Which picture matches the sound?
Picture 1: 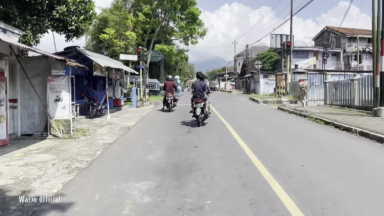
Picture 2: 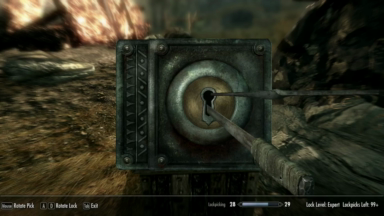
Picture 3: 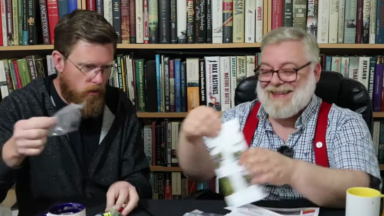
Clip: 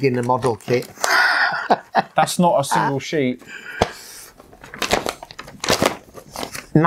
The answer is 3